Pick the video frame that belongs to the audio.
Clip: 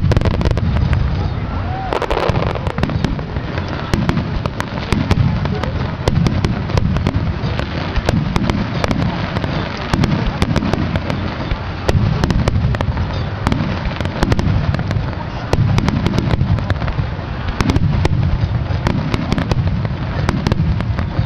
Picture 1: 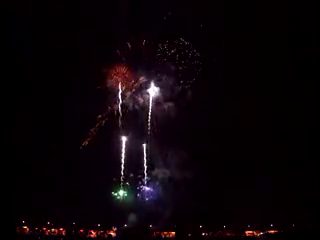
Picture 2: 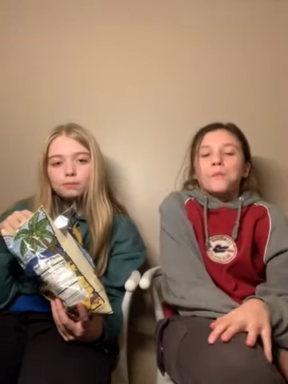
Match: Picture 1